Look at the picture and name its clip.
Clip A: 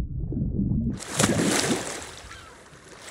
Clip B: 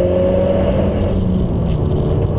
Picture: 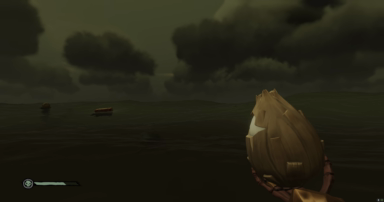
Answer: A